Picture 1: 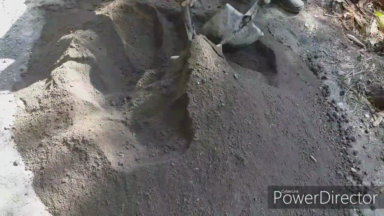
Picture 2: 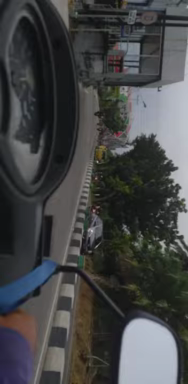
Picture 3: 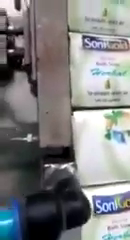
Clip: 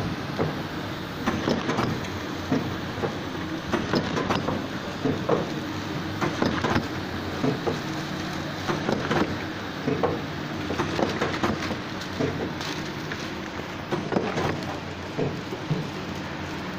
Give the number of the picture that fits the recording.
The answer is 3